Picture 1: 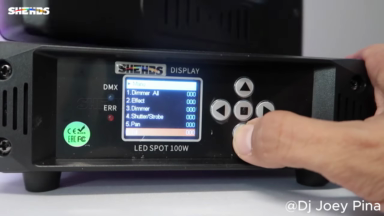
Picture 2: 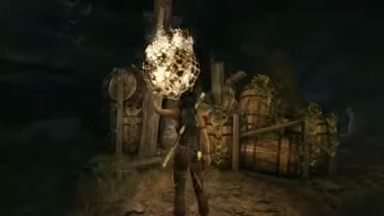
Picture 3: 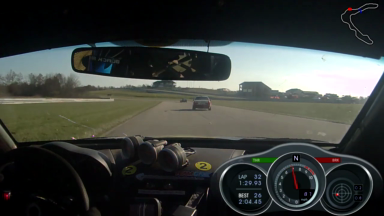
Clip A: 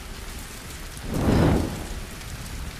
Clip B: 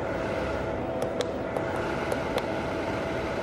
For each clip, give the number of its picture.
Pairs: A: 2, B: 1